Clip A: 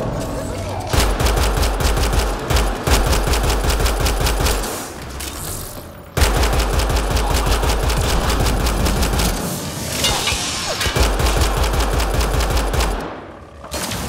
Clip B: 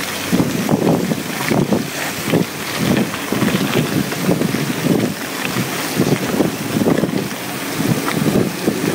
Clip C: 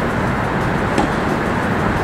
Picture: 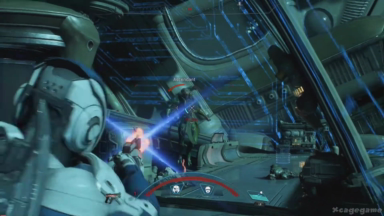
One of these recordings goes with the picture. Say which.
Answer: A